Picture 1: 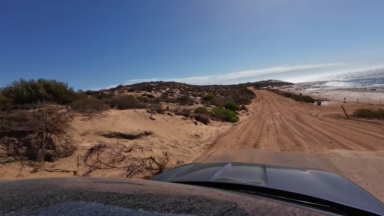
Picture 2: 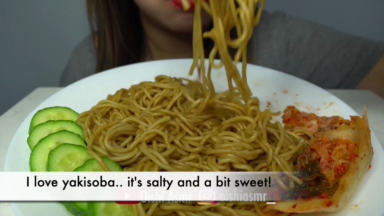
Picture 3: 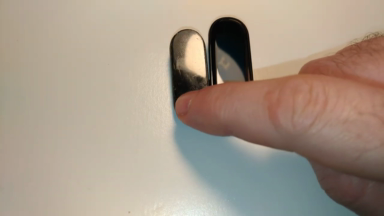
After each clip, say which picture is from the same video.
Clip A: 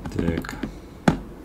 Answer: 3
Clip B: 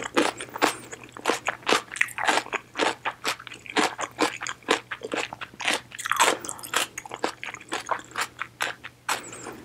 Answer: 2